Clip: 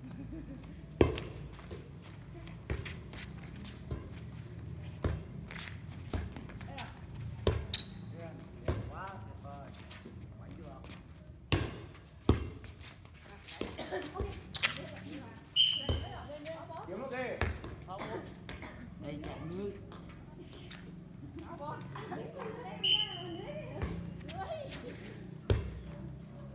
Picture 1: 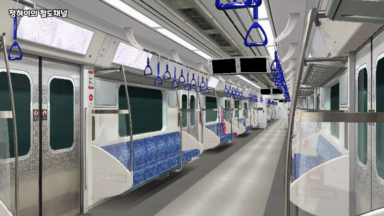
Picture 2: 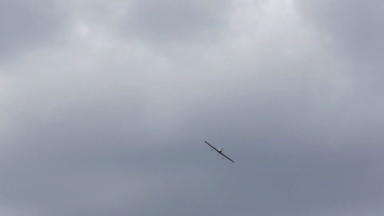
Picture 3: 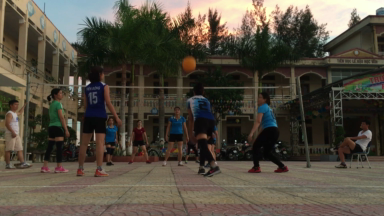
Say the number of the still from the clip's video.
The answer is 3